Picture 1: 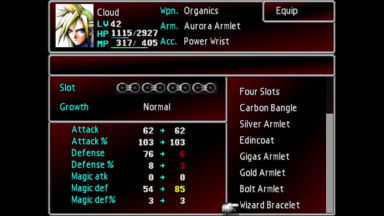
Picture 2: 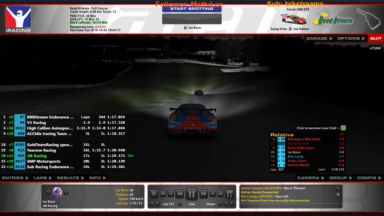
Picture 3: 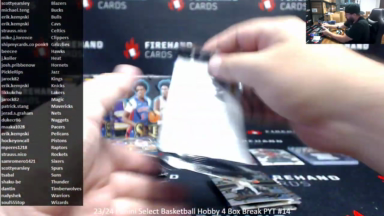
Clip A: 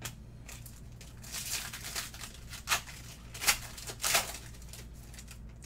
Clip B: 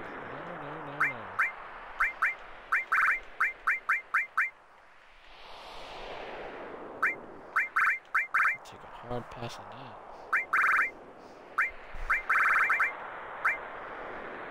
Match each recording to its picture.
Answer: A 3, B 1